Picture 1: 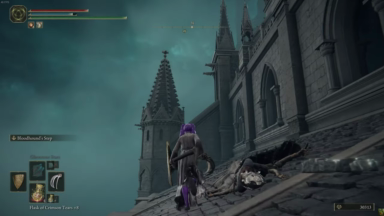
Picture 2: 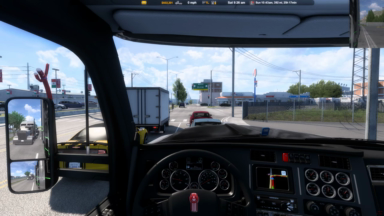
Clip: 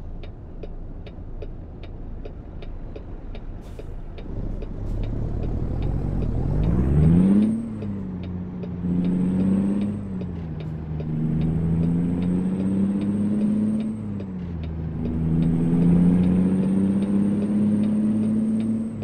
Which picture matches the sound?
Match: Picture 2